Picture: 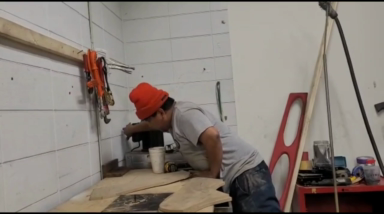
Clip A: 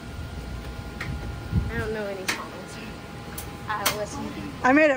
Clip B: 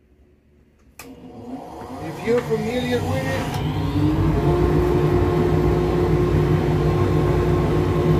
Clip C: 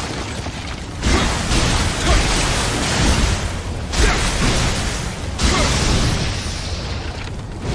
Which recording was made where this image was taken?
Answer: B